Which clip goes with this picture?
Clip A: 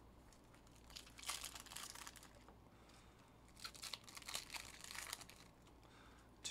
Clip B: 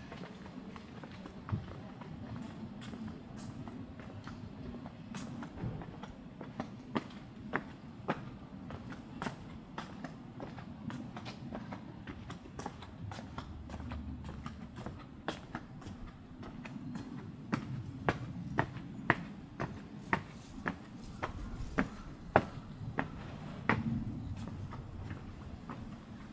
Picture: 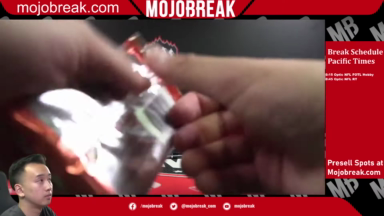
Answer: A